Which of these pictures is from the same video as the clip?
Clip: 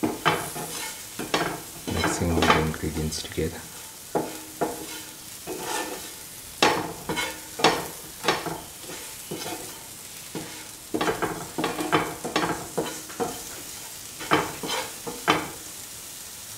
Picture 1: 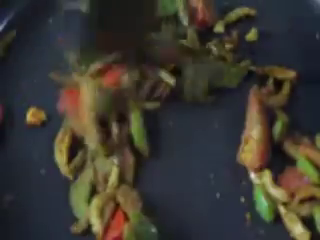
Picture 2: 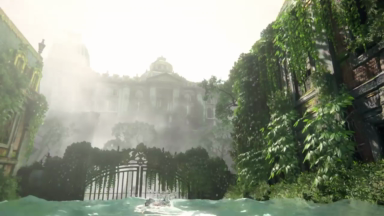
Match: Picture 1